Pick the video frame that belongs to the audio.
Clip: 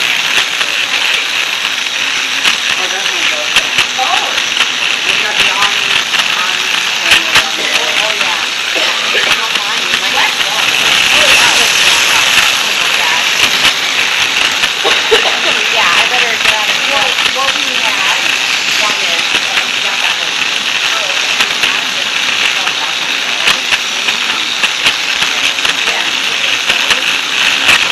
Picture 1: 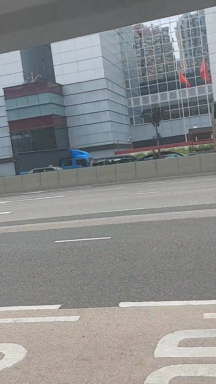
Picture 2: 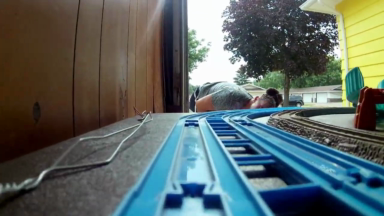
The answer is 2